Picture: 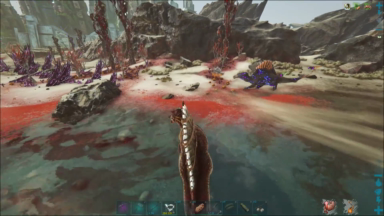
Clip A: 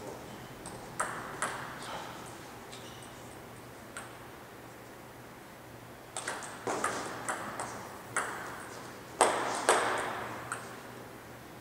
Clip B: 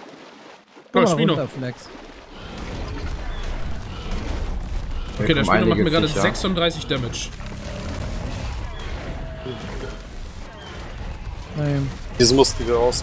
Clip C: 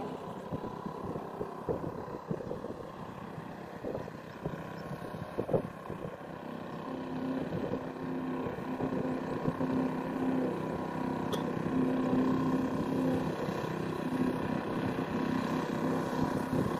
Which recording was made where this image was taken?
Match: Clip B